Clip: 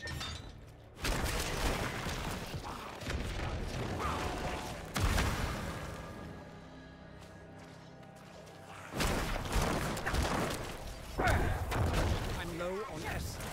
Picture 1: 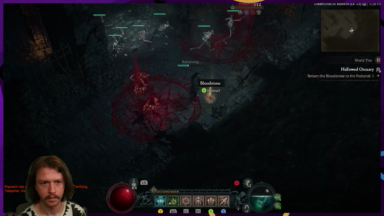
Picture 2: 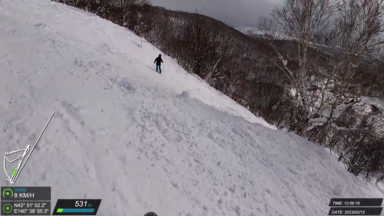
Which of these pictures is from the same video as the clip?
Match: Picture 1